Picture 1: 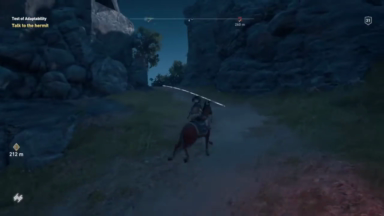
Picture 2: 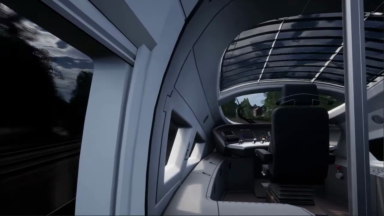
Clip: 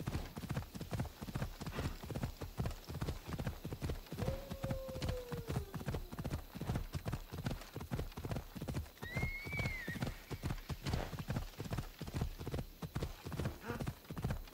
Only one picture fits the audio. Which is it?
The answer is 1